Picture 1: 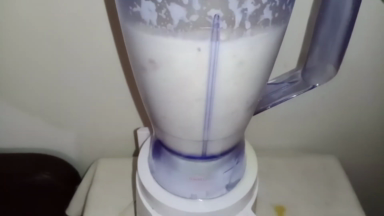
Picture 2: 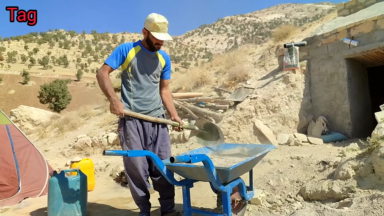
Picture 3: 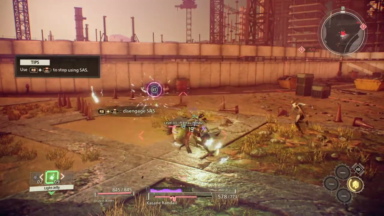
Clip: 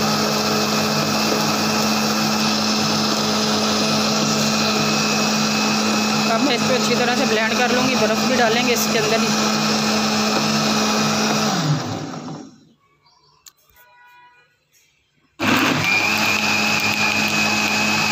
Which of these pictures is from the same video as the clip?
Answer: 1